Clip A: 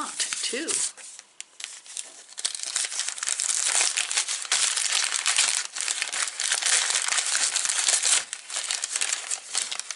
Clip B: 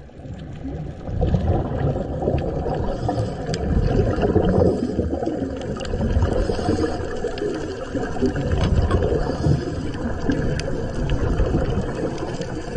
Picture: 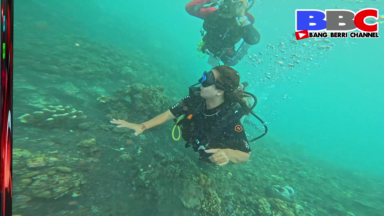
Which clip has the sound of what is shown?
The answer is B